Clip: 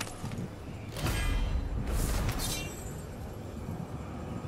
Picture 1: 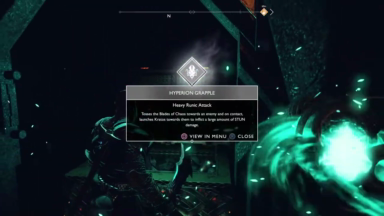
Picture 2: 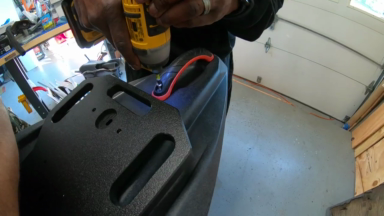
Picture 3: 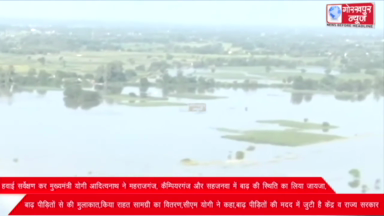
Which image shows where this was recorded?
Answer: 1